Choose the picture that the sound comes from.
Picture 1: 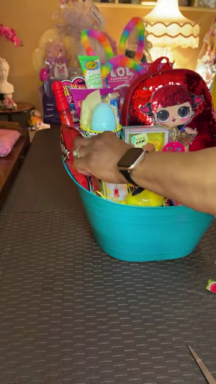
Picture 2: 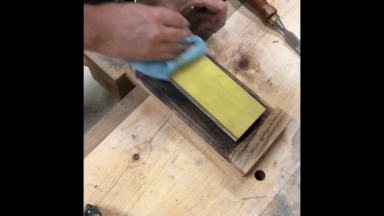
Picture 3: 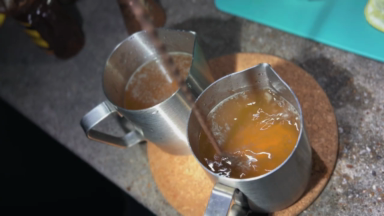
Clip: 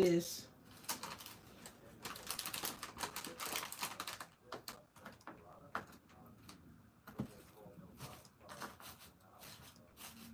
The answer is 1